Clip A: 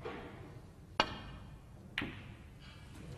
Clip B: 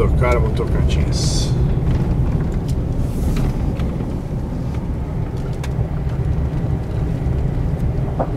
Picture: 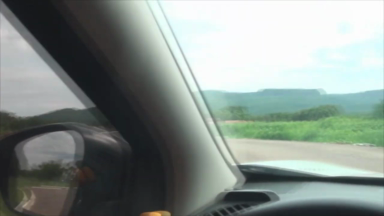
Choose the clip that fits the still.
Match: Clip B